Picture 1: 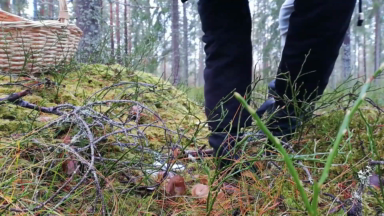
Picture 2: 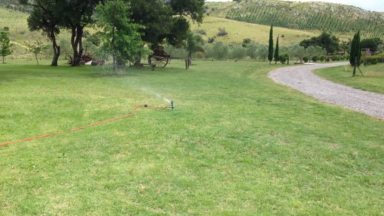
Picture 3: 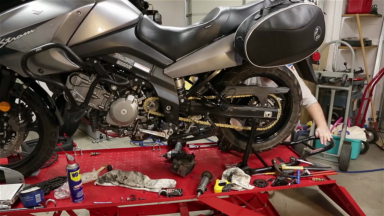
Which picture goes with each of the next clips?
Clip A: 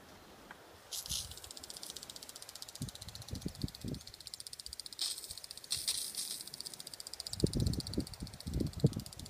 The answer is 2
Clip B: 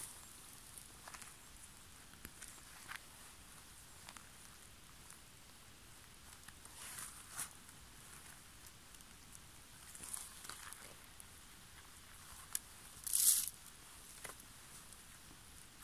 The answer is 1